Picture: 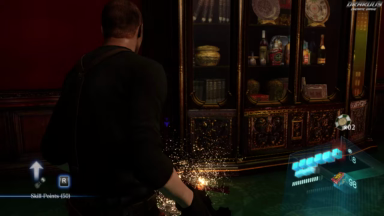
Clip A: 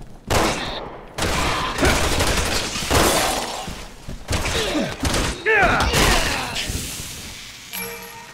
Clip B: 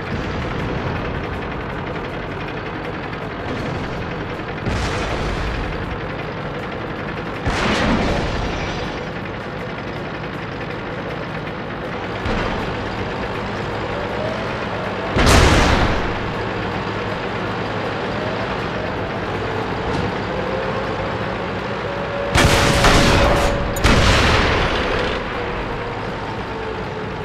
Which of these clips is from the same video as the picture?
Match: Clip A